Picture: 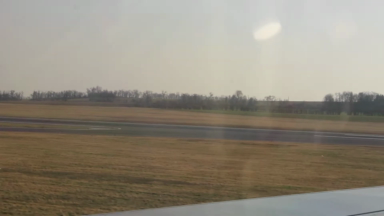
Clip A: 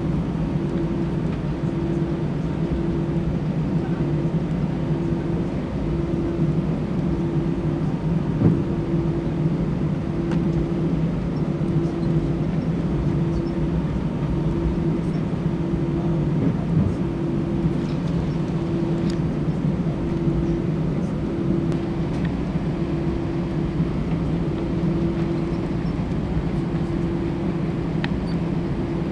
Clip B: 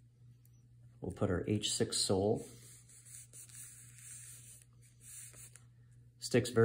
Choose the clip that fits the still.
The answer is A